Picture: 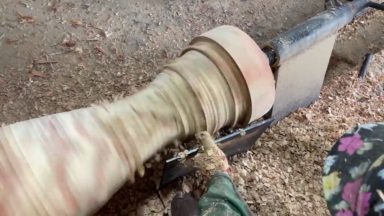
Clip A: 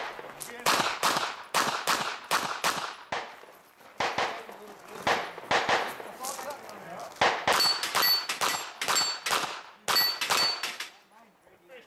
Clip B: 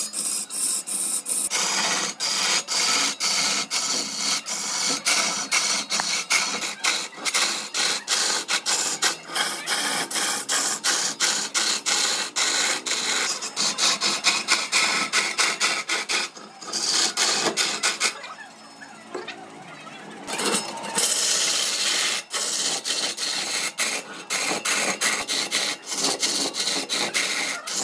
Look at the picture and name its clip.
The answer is B